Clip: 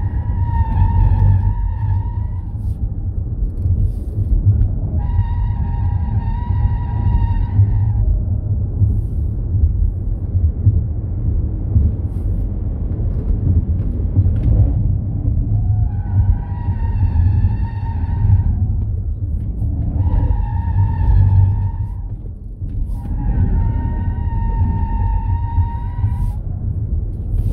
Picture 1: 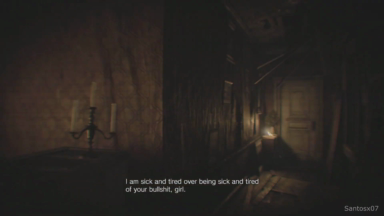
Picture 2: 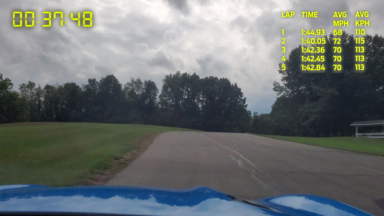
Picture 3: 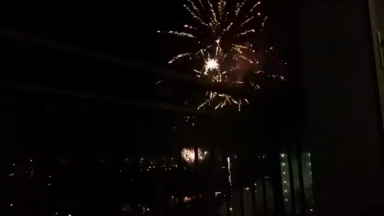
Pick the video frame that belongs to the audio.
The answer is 2